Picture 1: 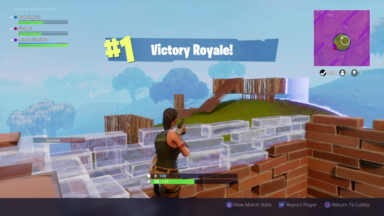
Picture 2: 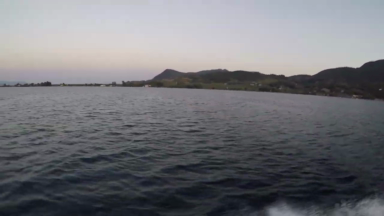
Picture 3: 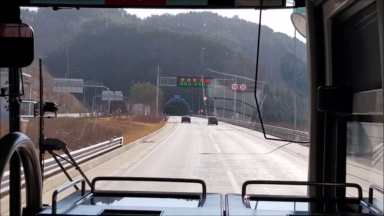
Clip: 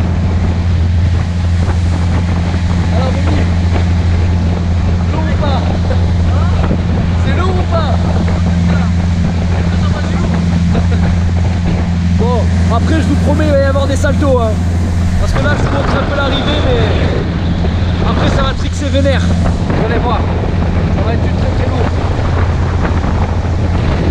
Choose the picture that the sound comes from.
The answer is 2